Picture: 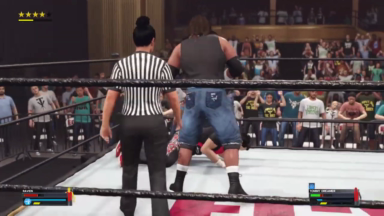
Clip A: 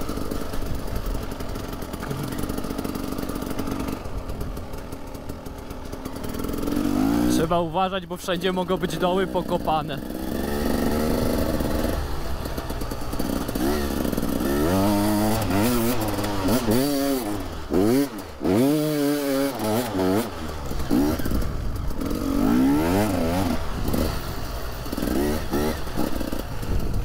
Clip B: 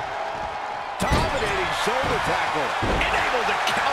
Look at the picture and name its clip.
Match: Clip B